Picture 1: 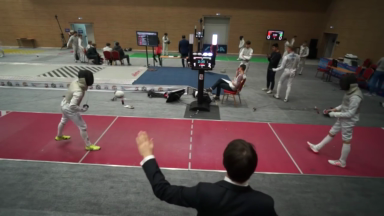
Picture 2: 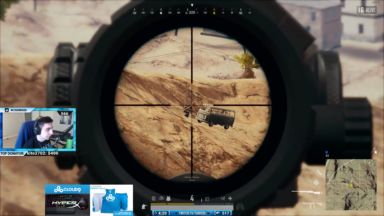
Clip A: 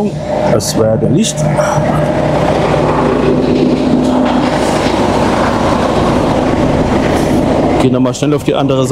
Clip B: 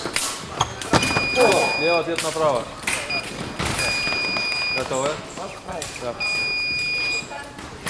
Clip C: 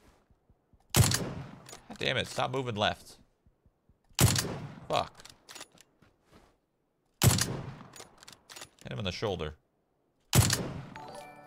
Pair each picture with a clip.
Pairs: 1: B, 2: C